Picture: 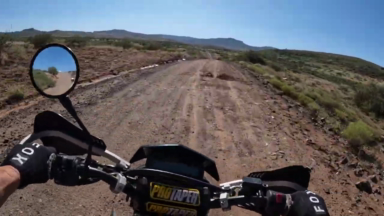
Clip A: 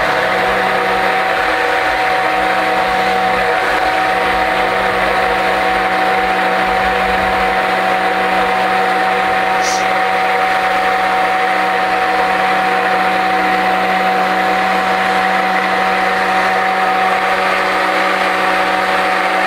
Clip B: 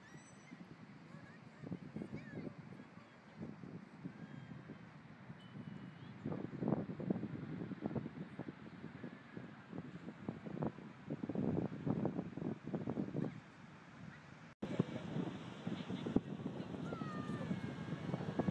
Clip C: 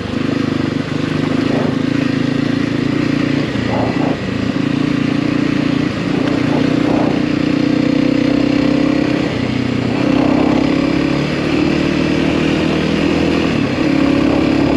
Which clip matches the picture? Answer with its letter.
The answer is C